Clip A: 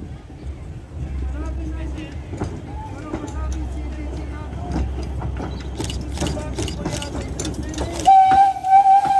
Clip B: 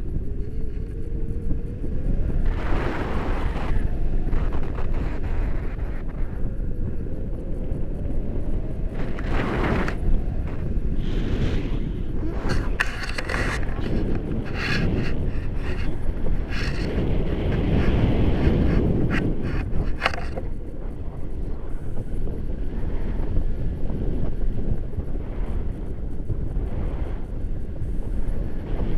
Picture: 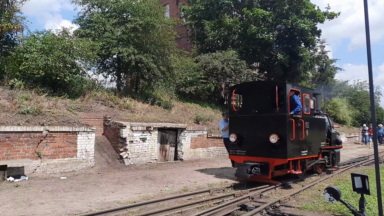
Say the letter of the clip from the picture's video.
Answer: A